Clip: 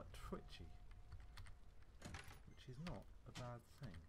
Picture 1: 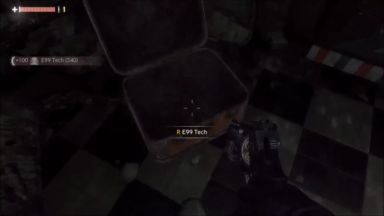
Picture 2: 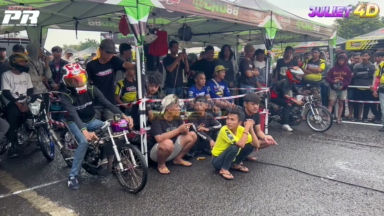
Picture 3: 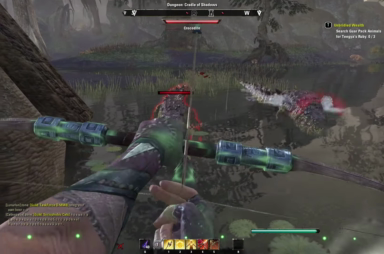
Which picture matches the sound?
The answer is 1